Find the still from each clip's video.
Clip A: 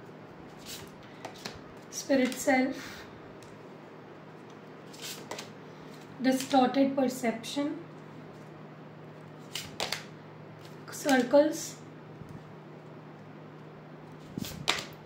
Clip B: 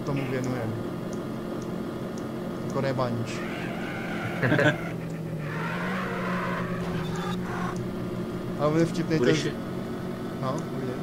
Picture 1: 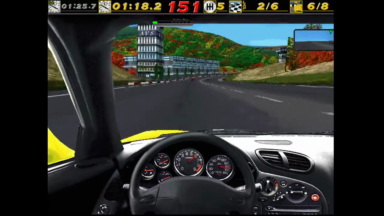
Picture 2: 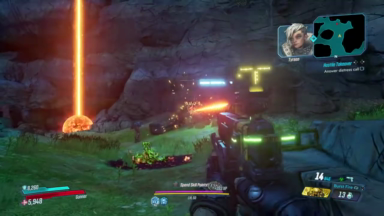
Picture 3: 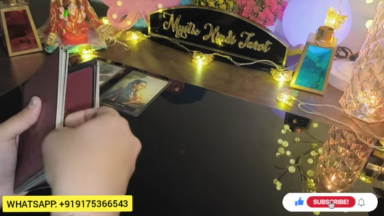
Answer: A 3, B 1